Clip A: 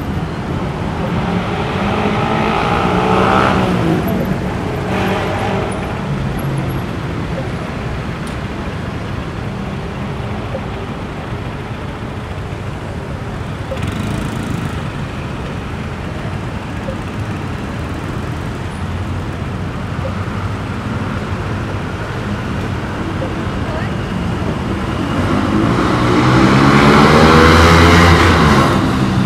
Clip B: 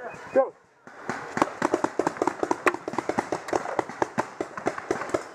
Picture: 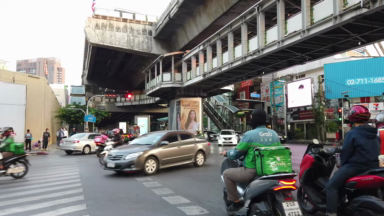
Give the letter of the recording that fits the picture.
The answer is A